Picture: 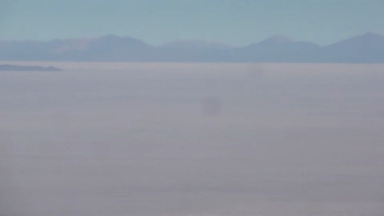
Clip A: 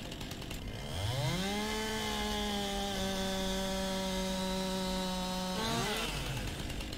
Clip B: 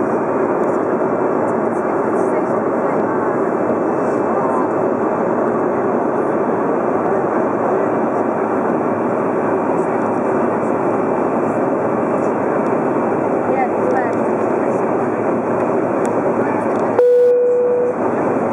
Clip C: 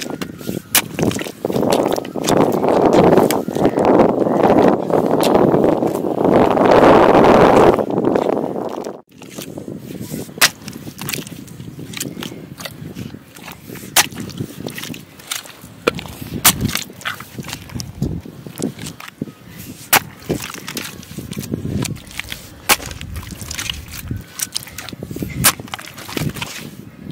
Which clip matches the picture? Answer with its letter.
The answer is B